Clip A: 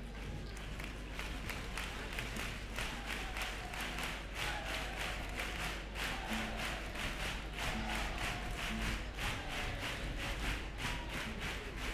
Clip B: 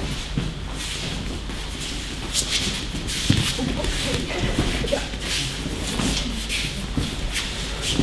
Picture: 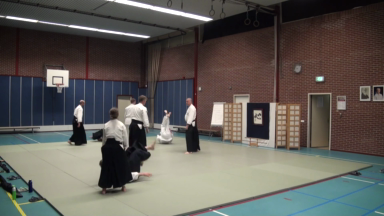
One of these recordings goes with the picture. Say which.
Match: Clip B